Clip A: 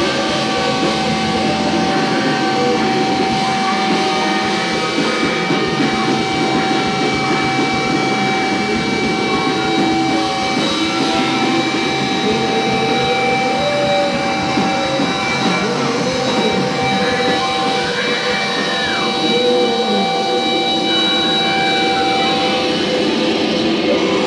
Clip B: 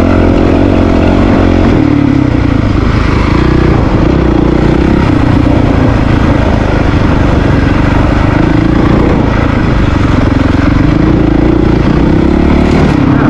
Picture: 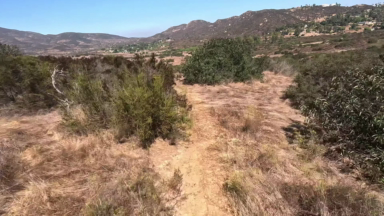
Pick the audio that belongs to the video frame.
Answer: B